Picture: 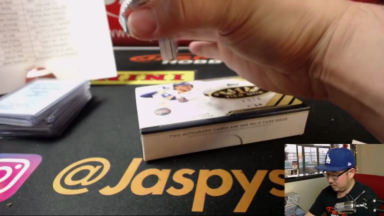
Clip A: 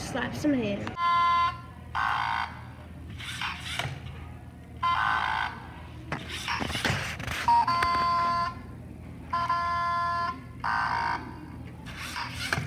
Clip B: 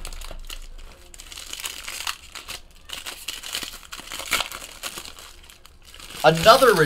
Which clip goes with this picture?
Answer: B